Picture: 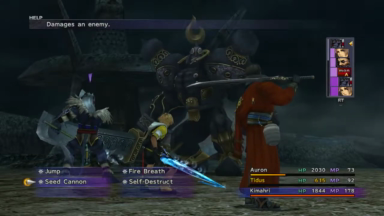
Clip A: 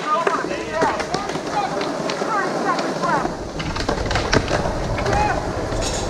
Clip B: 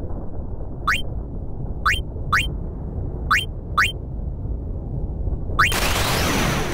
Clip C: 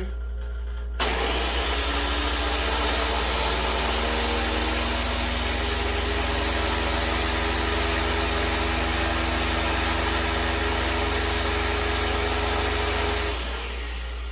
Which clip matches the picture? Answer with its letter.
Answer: B